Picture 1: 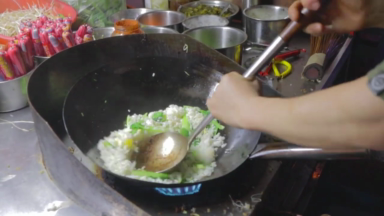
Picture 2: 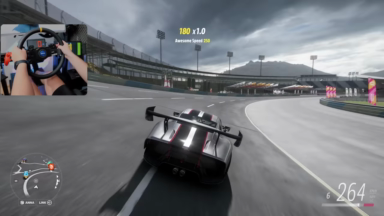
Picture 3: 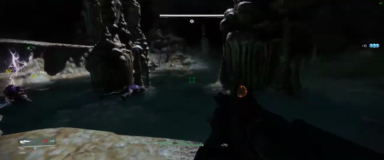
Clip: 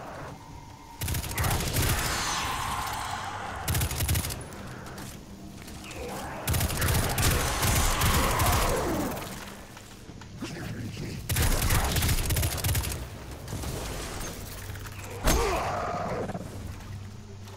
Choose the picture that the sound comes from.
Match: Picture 3